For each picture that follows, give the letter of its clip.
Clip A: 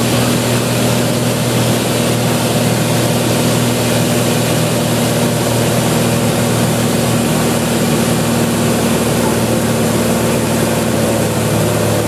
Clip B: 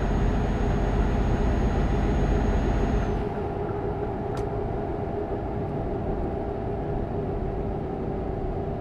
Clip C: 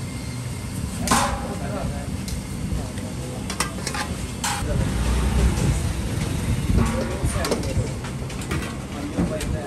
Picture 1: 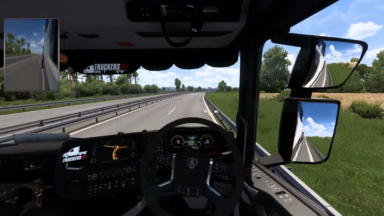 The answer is B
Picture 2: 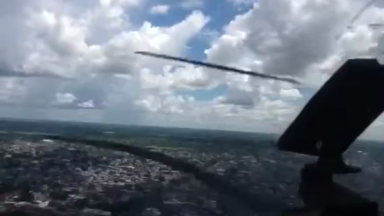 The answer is A